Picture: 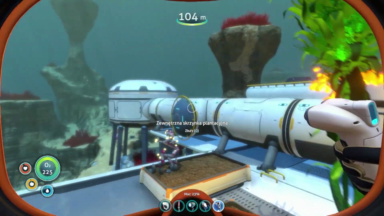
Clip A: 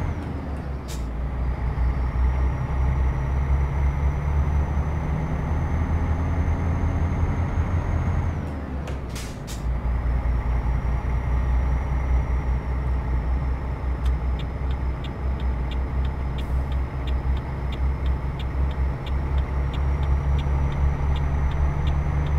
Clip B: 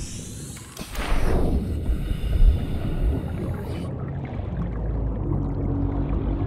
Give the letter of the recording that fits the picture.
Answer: B